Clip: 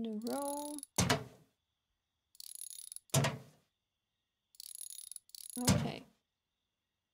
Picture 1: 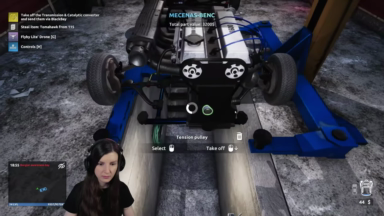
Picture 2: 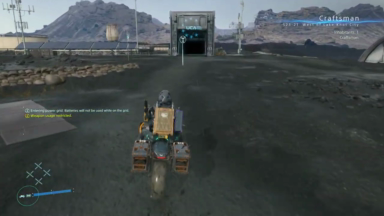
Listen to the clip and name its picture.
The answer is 1